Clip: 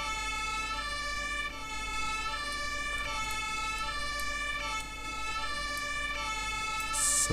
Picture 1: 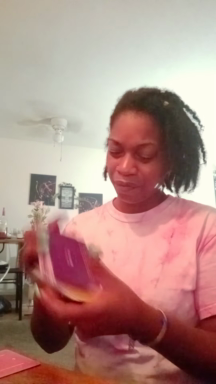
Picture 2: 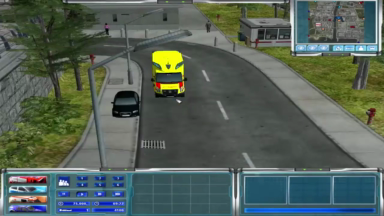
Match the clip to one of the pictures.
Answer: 2